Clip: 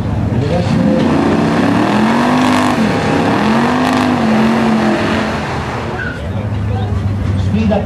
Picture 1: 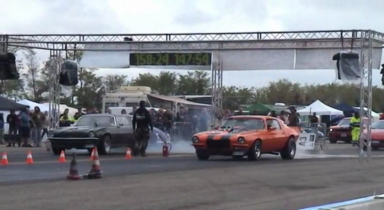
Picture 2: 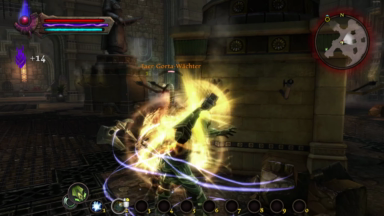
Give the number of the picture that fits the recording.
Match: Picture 1